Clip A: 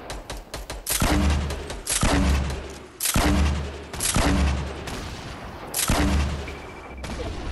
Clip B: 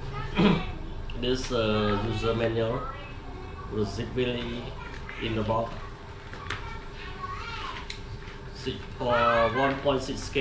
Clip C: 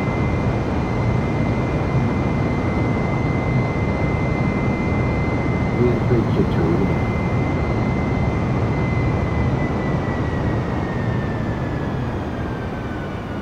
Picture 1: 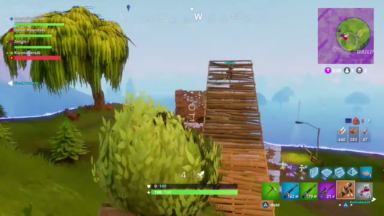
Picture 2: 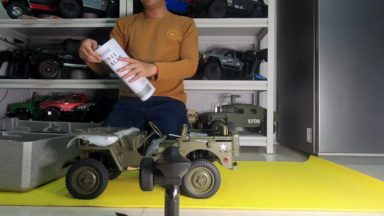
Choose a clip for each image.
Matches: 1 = A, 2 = B